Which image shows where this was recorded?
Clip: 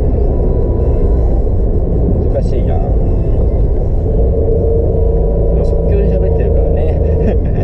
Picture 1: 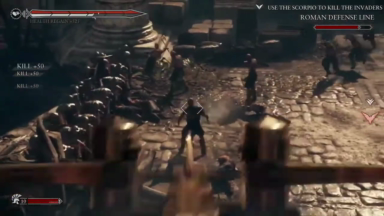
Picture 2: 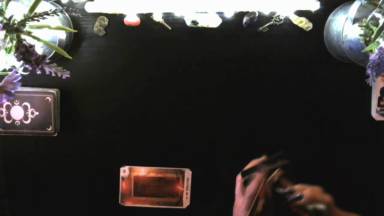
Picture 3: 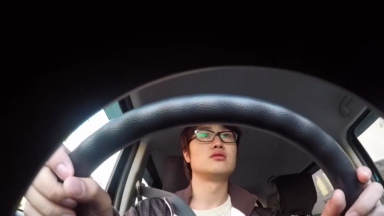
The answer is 3